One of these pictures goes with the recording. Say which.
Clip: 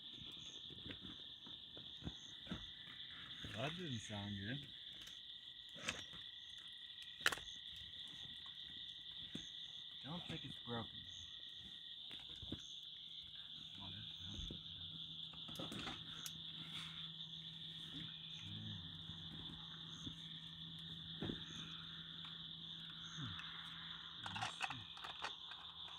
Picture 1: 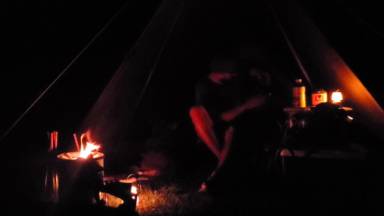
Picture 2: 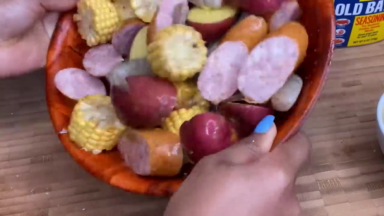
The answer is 1